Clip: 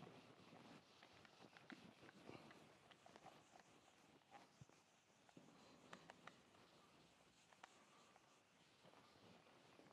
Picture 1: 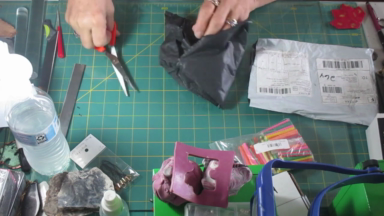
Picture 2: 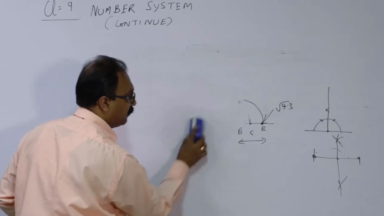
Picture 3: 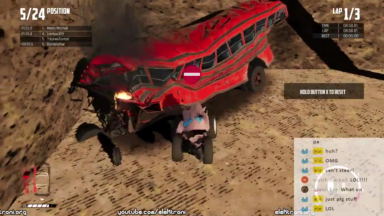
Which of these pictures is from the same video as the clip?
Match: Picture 2